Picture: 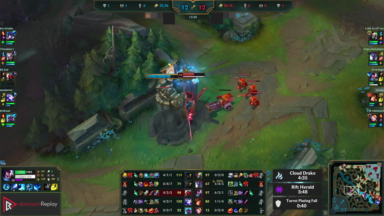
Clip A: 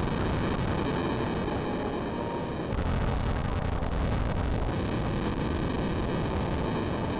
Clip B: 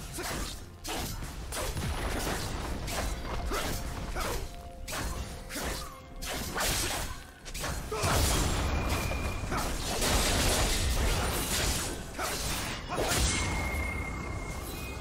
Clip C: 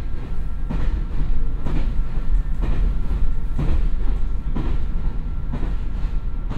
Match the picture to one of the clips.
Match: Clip B